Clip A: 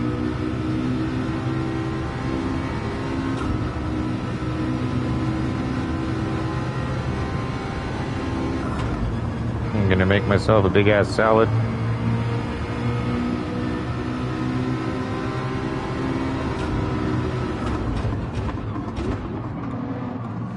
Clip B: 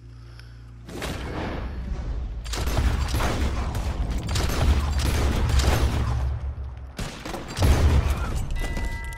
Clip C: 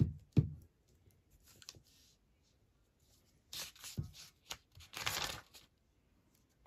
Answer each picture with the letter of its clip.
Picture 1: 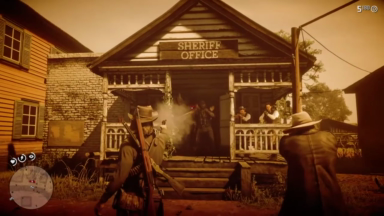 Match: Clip B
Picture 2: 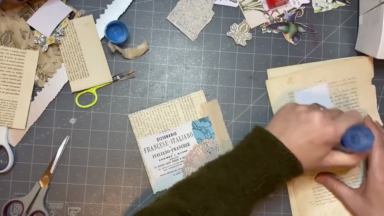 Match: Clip C